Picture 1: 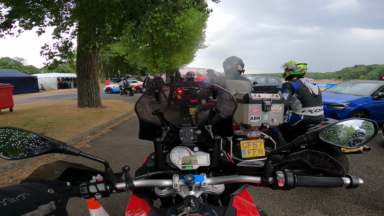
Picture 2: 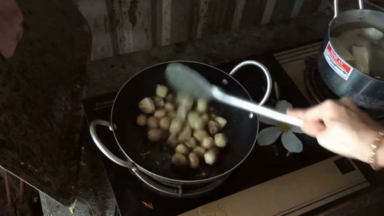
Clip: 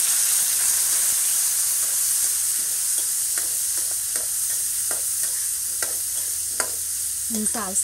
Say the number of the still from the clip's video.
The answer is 2